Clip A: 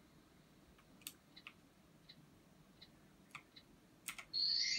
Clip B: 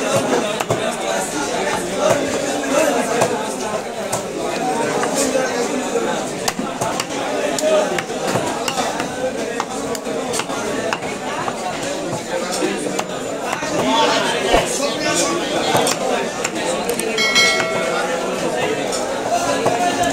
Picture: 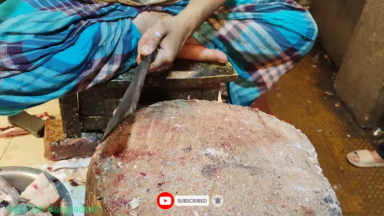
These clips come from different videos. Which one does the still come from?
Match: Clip B